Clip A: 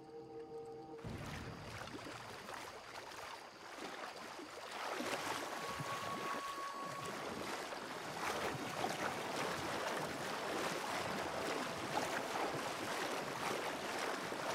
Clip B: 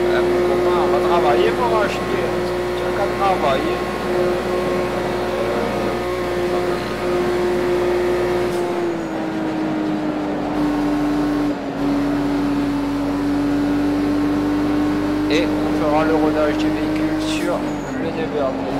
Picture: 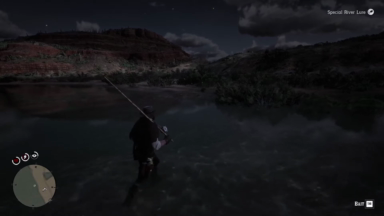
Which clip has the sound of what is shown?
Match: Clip A